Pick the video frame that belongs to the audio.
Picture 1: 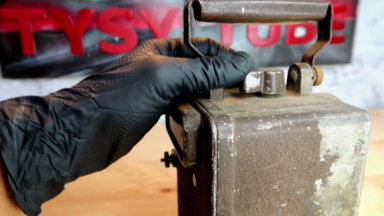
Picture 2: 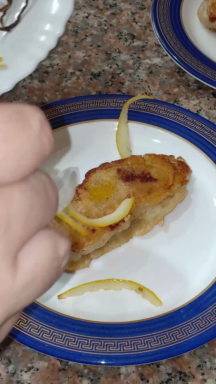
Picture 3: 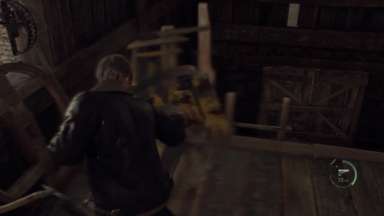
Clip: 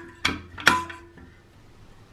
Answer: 1